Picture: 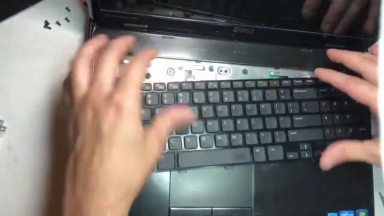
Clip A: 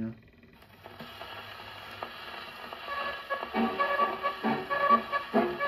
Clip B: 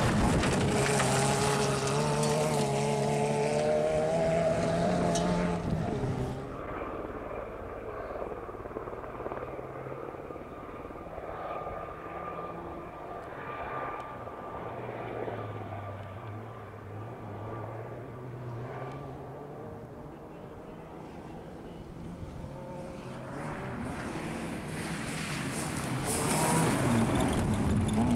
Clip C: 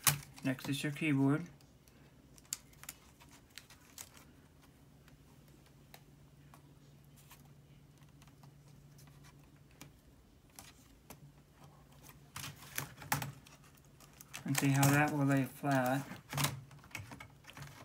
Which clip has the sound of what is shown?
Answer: C